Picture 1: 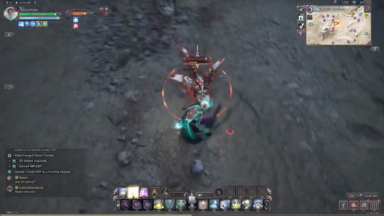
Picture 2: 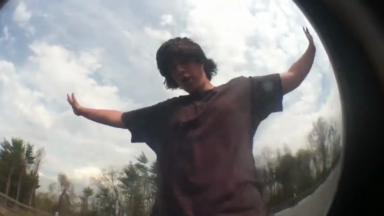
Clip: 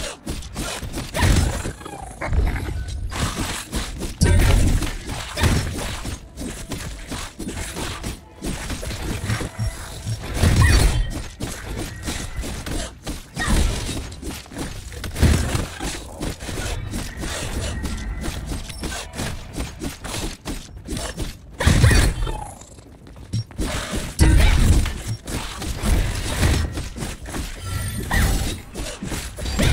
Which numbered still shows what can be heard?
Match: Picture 1